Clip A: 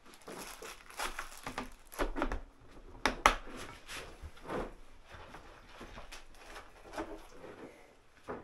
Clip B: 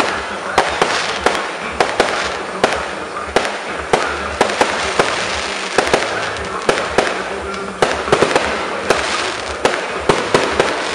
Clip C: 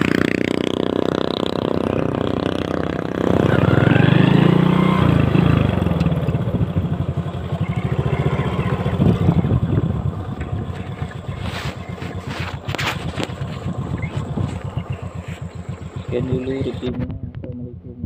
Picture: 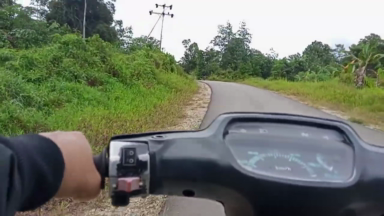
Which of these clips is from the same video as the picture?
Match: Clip C